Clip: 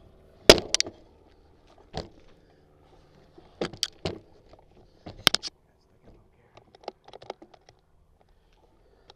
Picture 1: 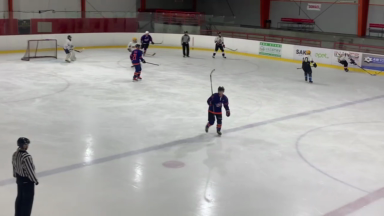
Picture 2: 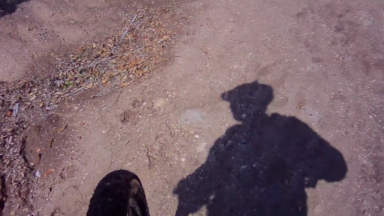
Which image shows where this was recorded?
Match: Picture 2